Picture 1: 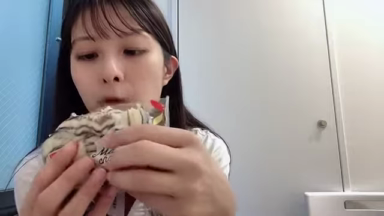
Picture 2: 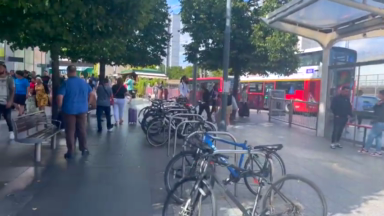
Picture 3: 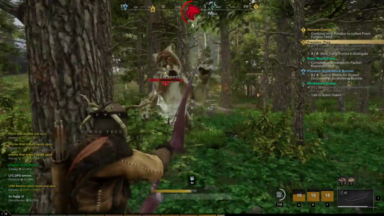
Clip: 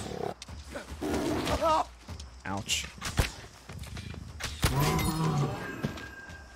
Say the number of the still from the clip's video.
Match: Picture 3